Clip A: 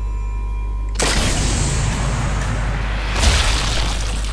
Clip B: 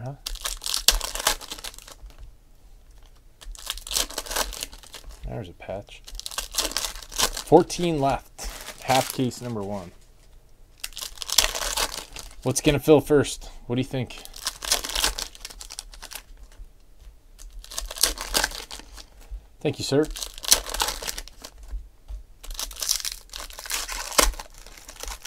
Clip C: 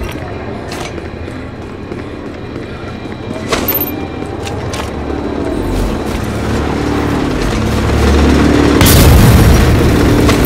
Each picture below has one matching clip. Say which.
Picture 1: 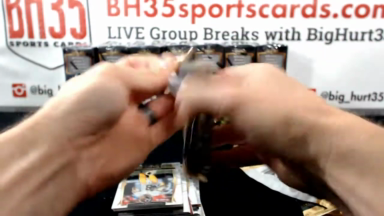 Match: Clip B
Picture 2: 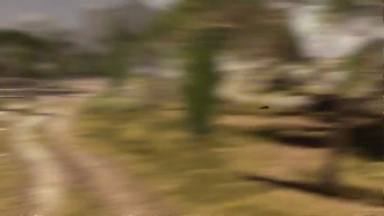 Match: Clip A